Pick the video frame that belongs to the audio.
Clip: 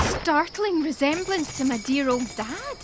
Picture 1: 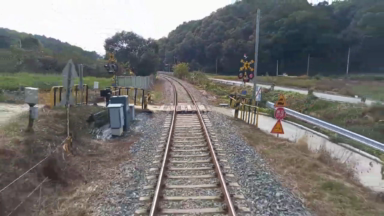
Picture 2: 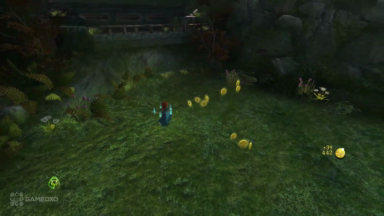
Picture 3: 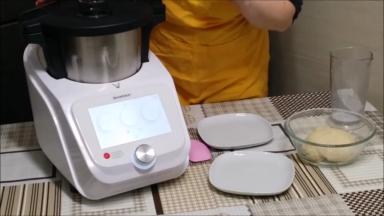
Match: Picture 2